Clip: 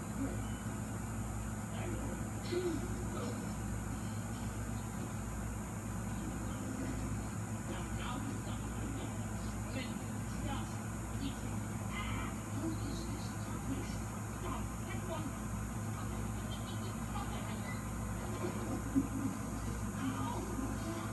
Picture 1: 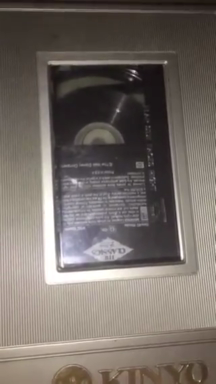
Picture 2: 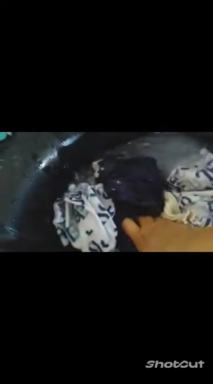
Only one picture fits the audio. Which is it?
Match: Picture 1